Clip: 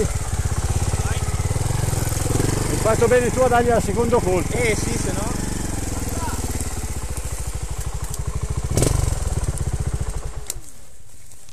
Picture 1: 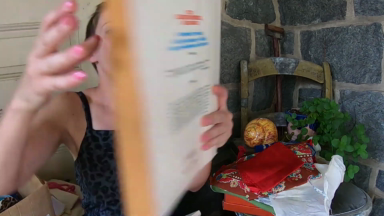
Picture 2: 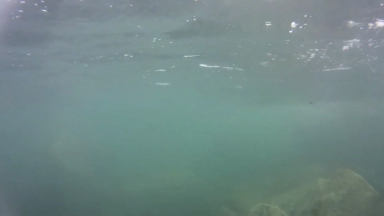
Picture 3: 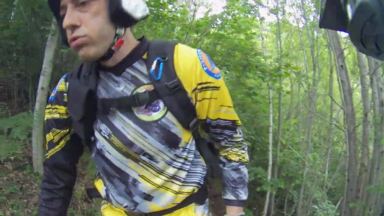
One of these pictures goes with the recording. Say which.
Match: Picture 3